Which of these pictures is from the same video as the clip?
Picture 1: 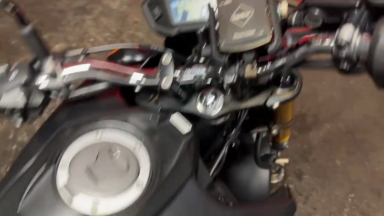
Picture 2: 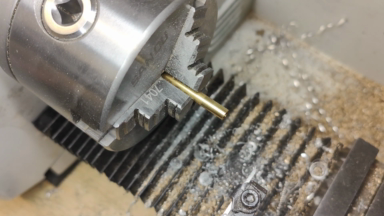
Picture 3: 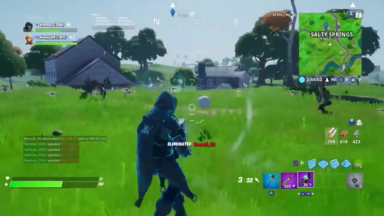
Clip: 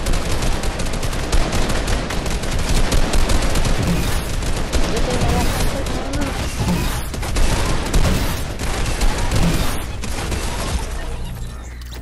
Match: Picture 3